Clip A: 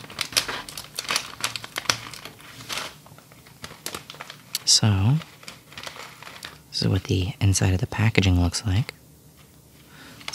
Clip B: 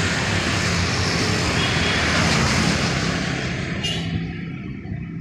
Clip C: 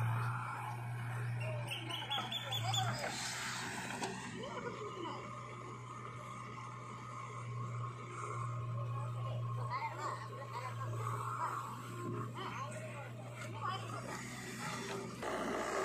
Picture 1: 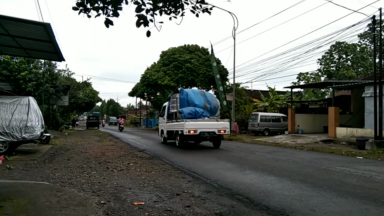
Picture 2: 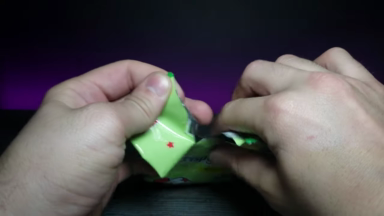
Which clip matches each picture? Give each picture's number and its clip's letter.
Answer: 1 B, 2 A